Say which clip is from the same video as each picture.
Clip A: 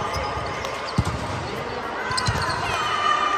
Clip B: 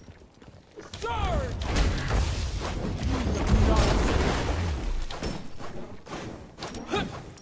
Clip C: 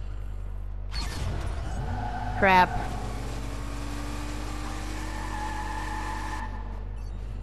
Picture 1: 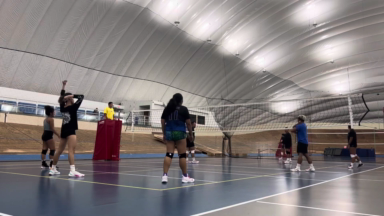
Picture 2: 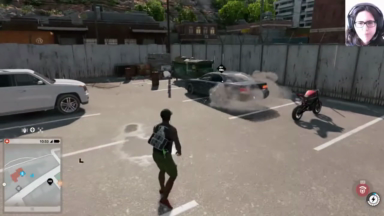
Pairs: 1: A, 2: C